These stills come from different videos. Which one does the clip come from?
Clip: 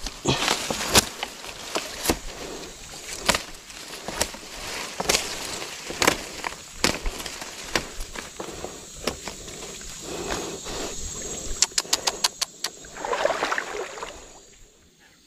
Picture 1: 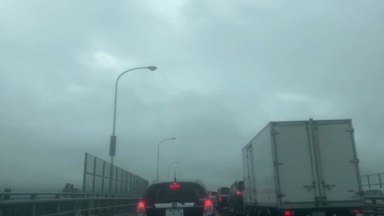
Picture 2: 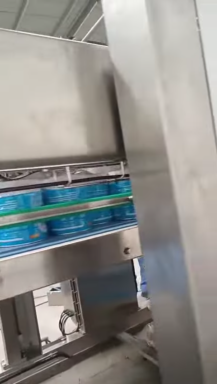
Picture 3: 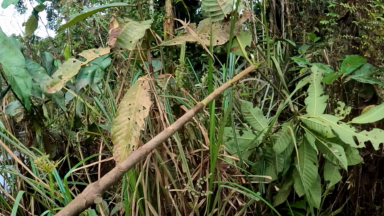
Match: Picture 3